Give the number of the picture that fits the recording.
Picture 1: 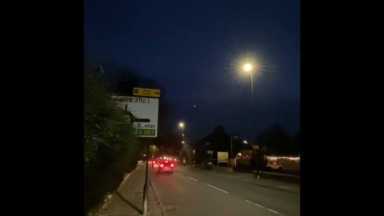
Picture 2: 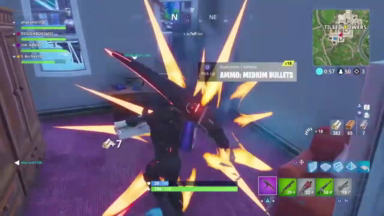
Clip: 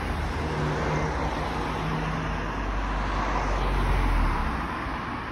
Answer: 1